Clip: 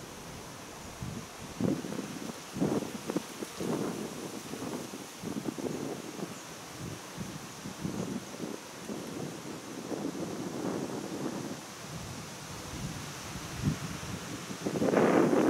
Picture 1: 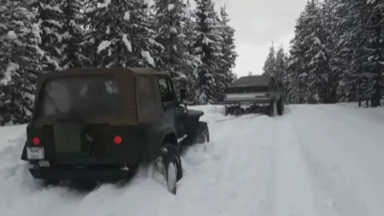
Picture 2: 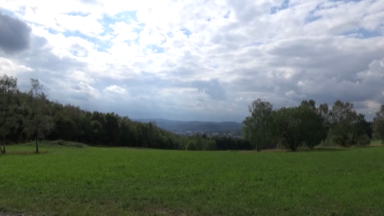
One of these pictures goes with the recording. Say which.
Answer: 2